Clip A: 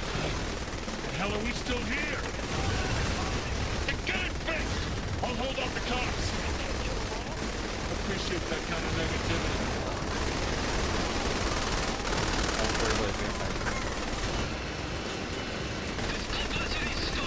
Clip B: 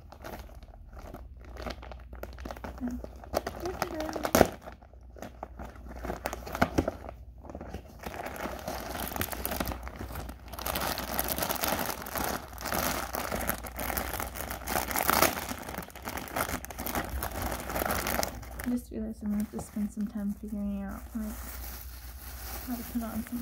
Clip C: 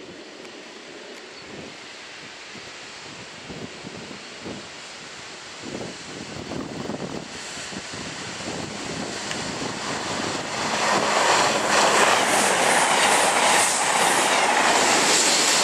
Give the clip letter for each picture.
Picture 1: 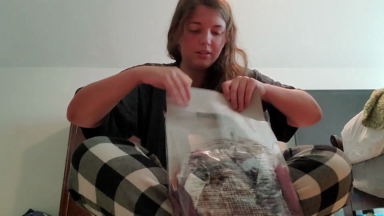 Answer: B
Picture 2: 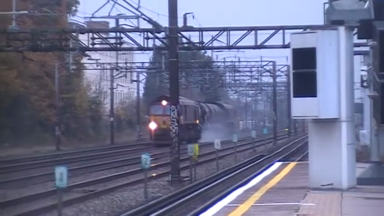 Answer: C